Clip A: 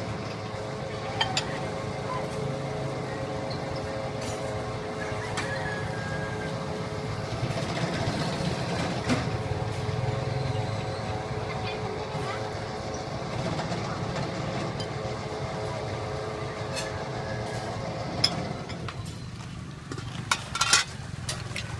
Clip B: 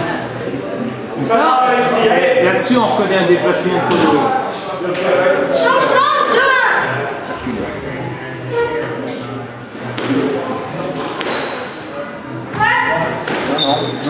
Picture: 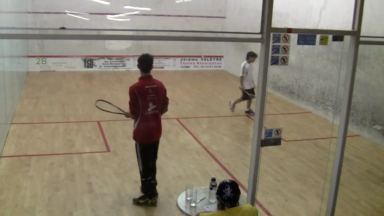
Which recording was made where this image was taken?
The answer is B